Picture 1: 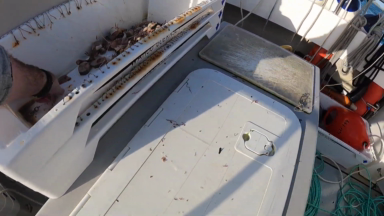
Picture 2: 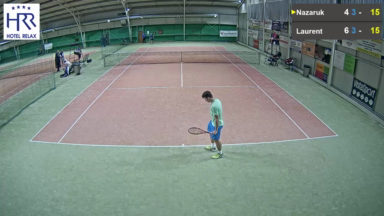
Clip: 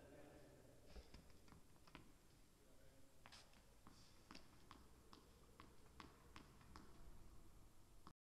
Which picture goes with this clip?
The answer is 2